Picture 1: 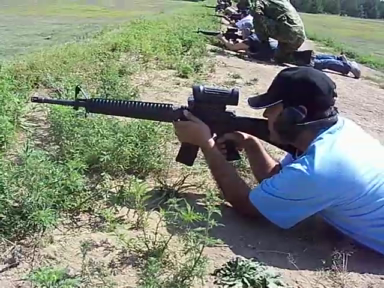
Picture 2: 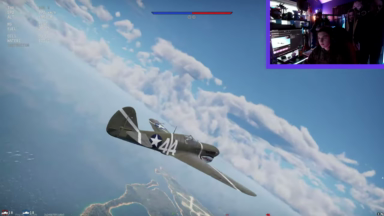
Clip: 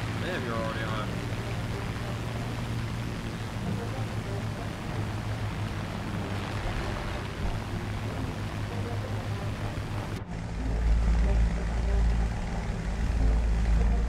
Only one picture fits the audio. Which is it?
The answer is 2